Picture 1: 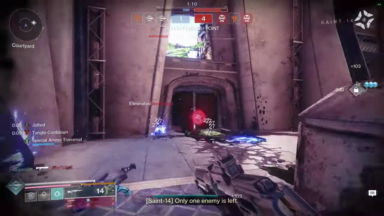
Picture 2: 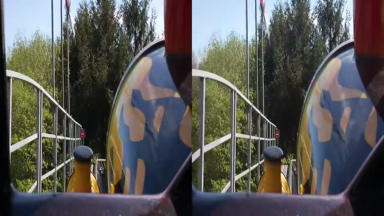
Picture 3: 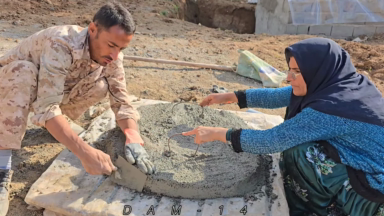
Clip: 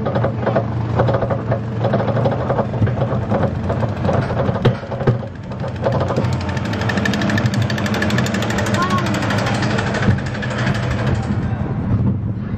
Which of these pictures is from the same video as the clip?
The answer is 2